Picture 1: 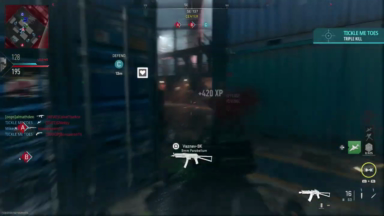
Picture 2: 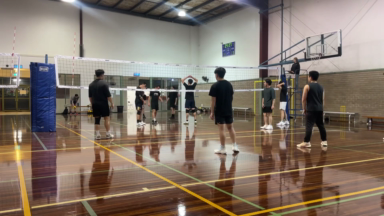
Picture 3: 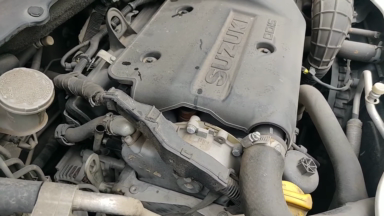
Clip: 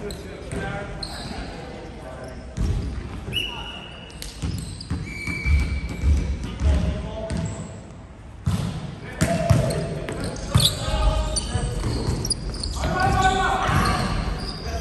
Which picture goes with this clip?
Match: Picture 2